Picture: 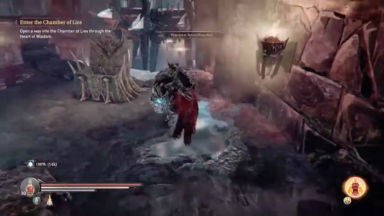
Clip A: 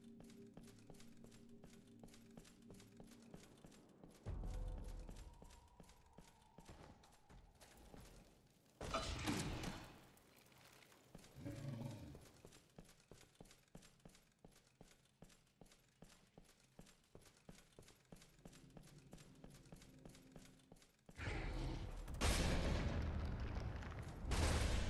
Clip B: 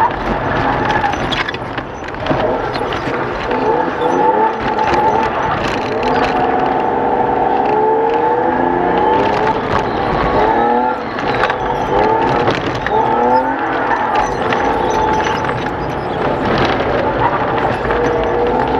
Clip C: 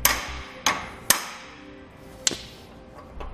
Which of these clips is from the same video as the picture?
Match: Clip A